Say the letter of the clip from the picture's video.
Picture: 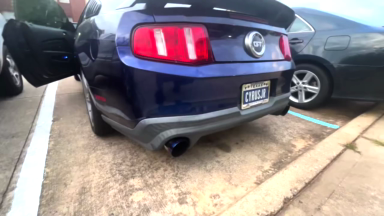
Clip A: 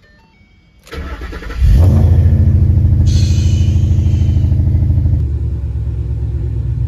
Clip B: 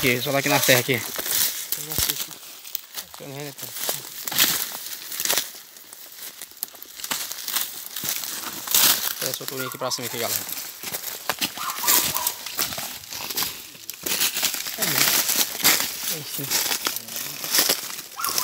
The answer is A